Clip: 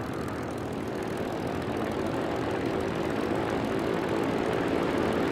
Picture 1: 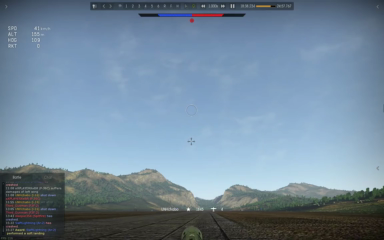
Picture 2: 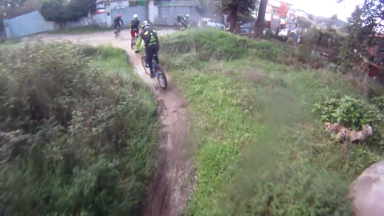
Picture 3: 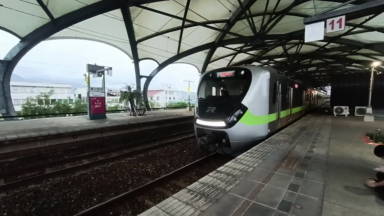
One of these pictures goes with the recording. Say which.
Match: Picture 1